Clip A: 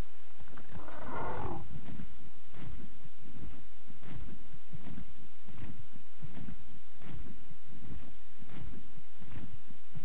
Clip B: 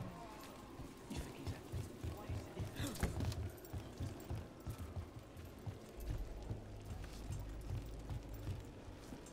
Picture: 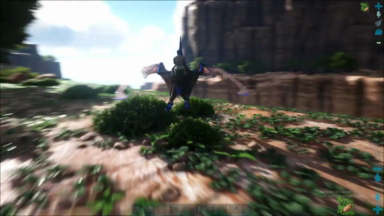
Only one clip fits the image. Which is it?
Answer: A